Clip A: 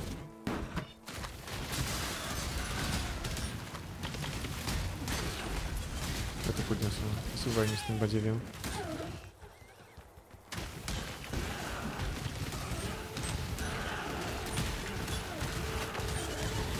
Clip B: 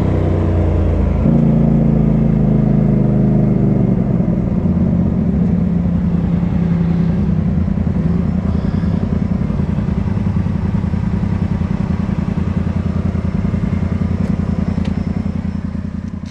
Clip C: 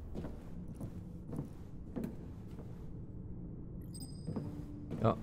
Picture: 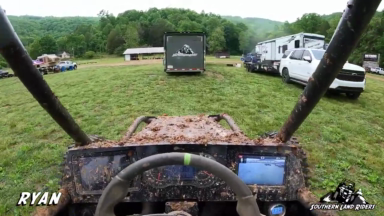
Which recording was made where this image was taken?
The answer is B